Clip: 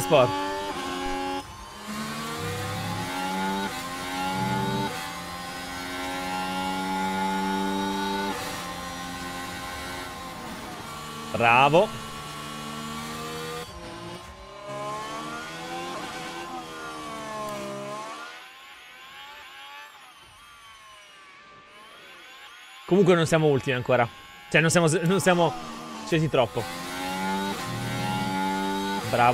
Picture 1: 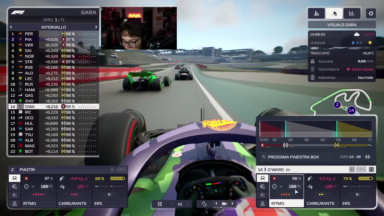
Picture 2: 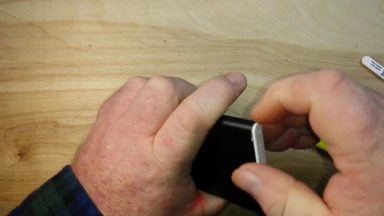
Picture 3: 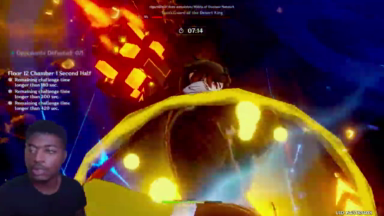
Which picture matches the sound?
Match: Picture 1